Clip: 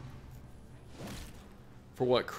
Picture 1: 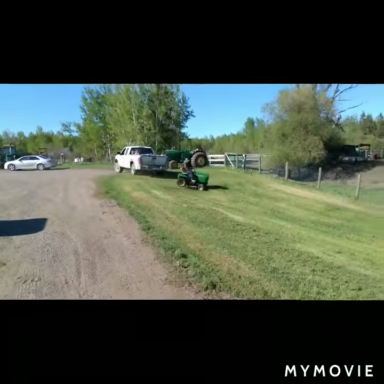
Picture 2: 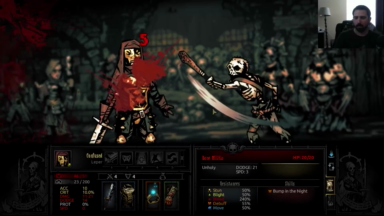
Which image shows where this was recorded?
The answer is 2